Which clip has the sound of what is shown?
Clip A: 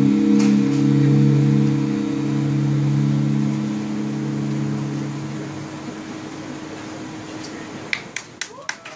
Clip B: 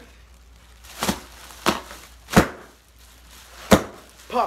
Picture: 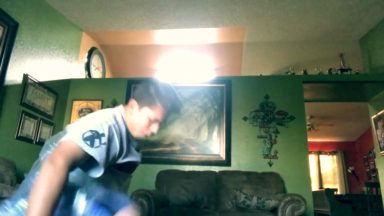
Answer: B